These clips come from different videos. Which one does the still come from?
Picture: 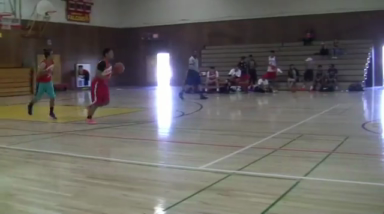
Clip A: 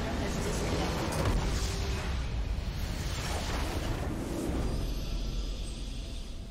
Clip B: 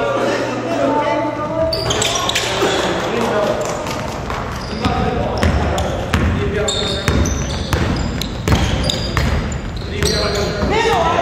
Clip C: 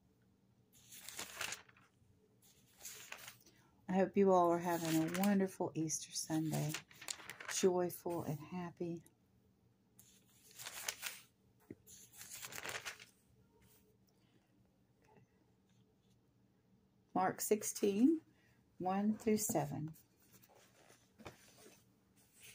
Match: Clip B